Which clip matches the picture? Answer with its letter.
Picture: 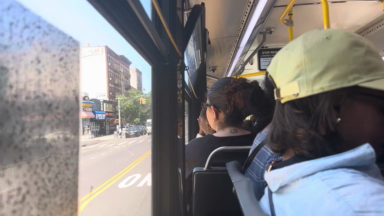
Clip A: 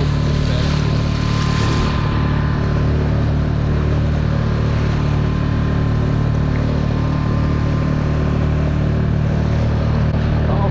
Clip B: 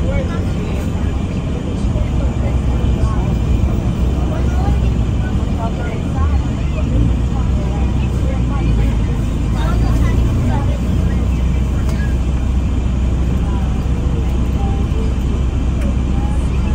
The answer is B